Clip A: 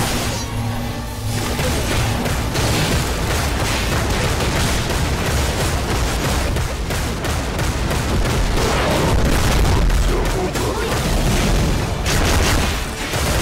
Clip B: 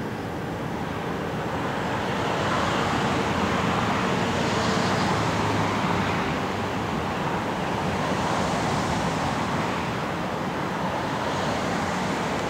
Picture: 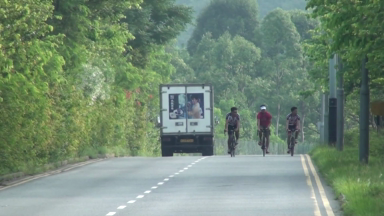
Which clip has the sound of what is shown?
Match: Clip B